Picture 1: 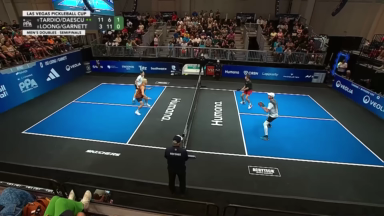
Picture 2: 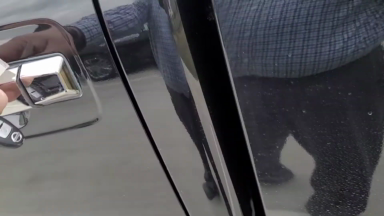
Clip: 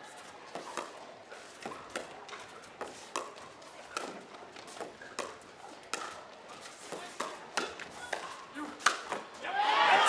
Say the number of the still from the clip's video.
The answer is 1